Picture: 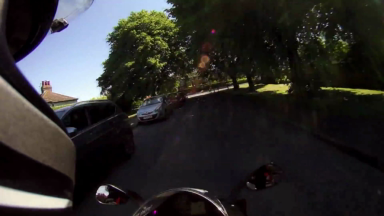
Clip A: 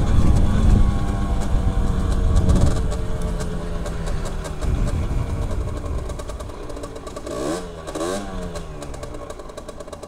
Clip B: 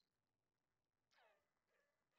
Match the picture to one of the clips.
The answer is A